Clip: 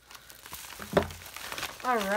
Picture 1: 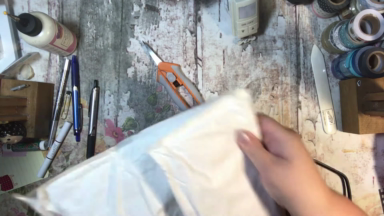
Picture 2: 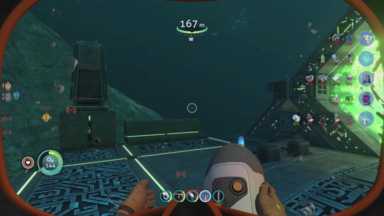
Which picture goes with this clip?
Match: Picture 1